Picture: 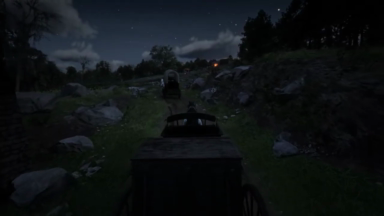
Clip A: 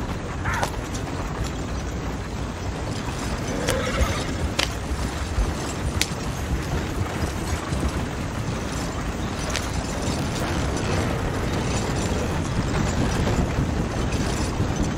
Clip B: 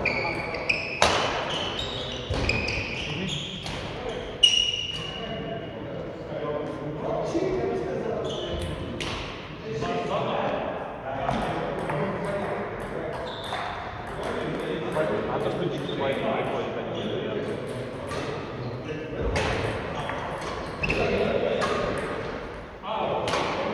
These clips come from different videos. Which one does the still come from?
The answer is A